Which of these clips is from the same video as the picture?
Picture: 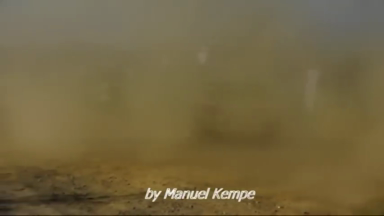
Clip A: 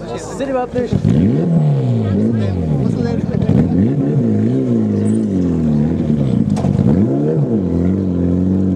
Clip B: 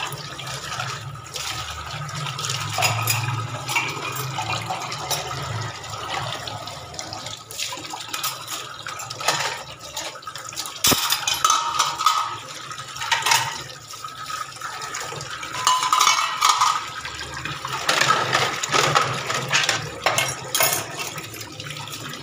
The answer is A